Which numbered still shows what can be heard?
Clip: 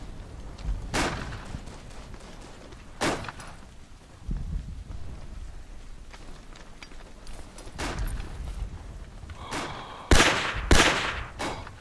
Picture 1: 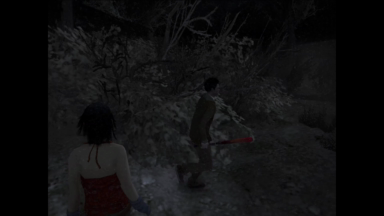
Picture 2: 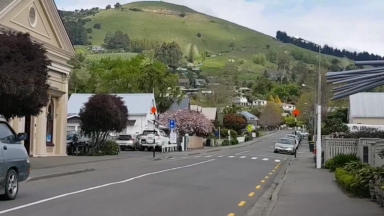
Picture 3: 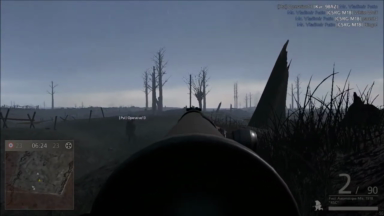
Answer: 3